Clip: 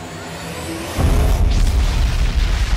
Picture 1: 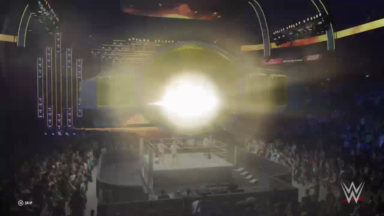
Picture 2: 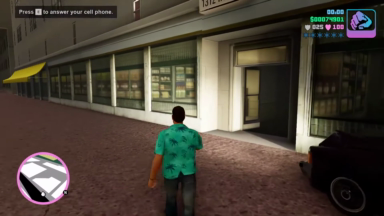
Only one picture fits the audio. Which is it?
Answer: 1